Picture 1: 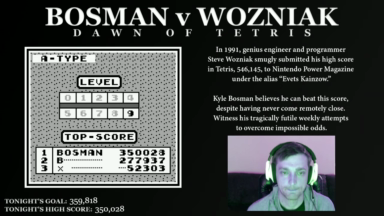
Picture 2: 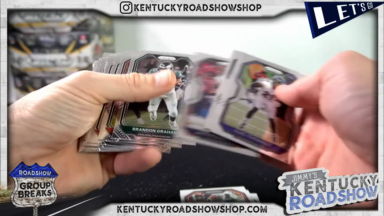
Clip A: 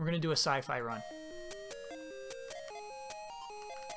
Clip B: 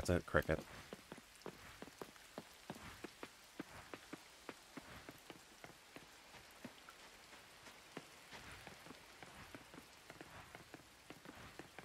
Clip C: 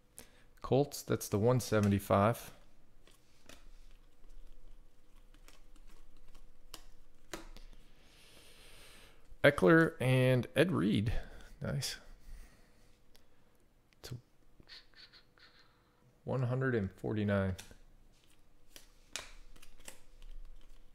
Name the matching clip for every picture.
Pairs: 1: A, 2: C